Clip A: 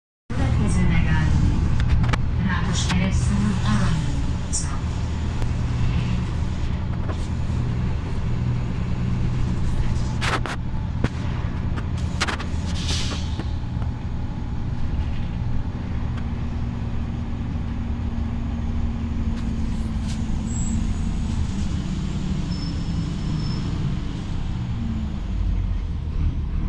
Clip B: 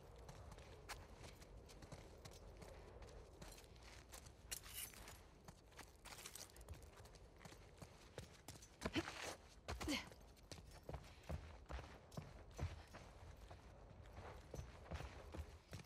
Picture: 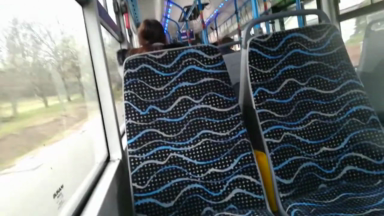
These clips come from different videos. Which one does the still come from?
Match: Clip A